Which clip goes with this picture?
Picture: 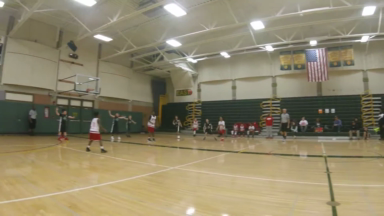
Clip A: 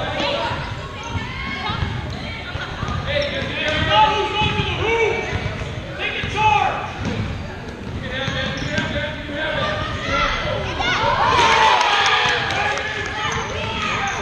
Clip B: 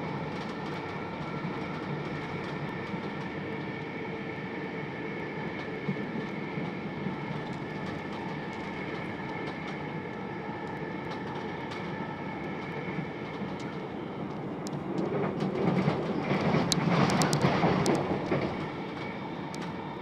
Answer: A